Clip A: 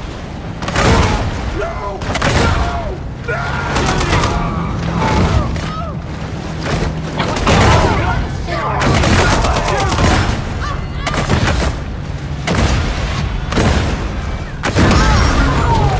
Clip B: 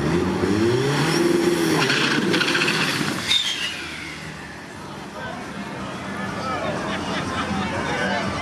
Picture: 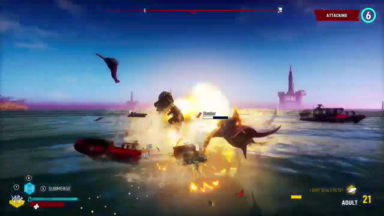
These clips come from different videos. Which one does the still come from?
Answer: A